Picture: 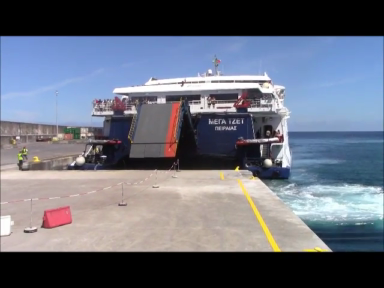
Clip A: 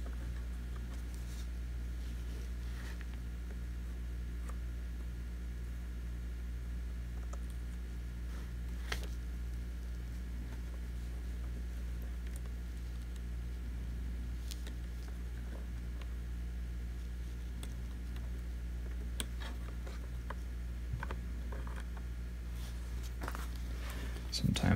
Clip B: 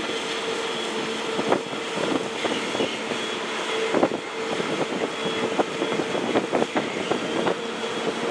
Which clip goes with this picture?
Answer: B